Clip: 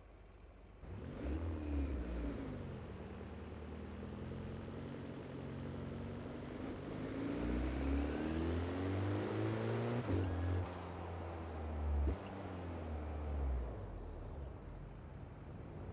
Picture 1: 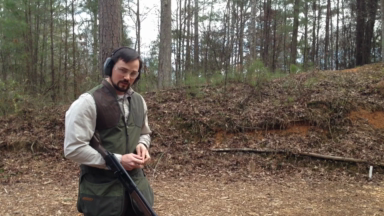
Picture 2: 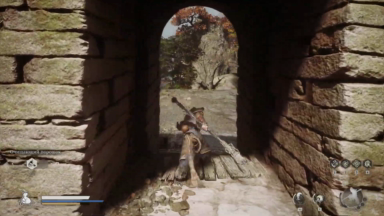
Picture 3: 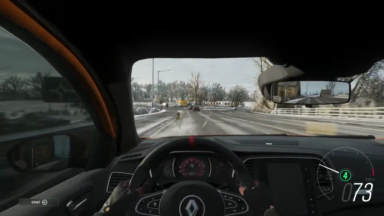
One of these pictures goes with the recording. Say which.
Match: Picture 3